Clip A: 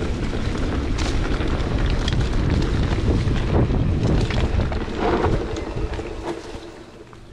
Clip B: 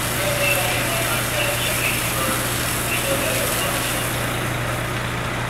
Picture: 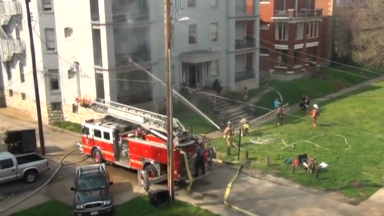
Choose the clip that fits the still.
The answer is B